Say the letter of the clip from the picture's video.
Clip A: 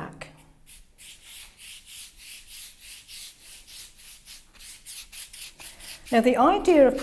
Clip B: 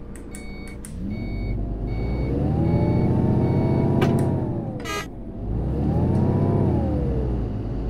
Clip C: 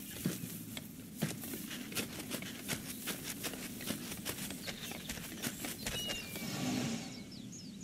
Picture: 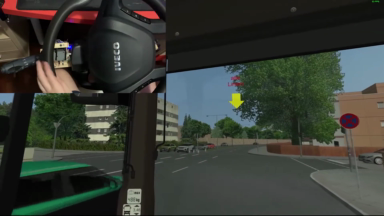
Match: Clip B